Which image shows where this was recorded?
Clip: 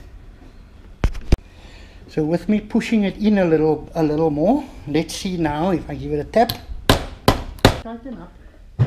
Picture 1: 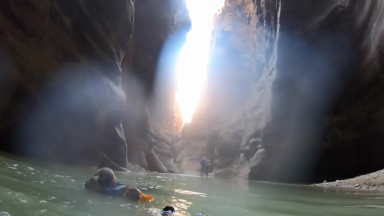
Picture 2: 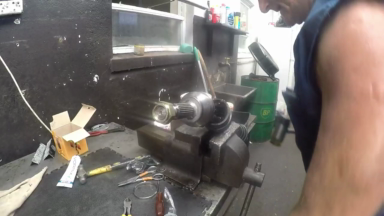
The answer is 2